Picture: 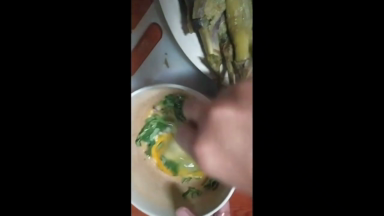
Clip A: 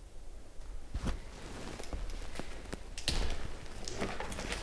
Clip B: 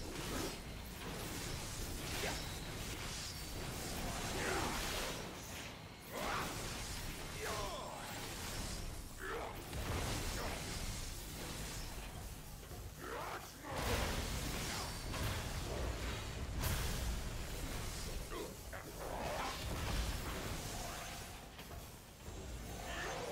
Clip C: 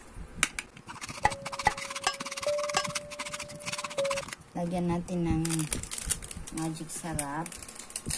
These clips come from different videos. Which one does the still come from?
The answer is C